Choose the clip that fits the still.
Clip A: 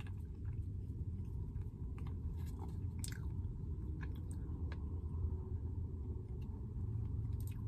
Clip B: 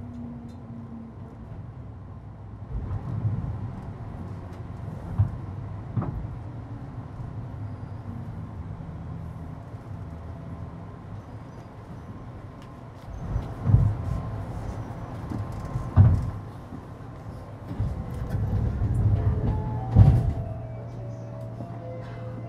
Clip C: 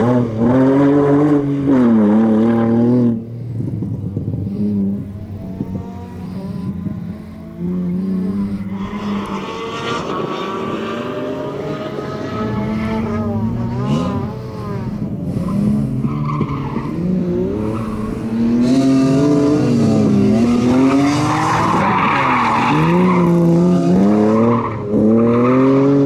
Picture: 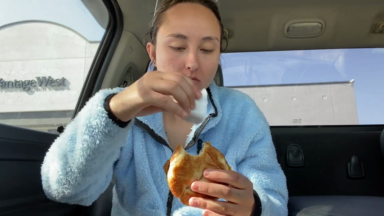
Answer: A